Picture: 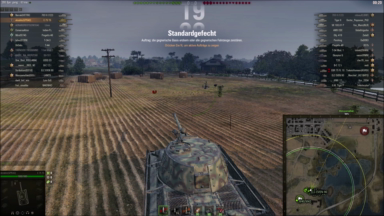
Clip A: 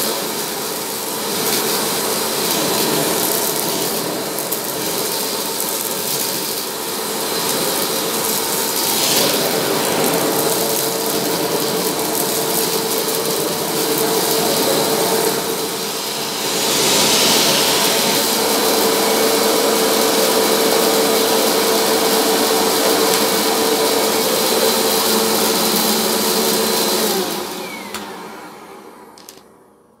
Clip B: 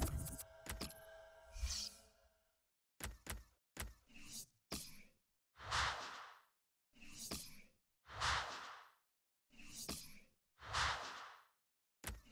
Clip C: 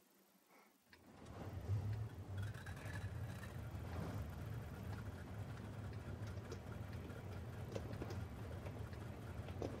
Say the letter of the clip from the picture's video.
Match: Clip C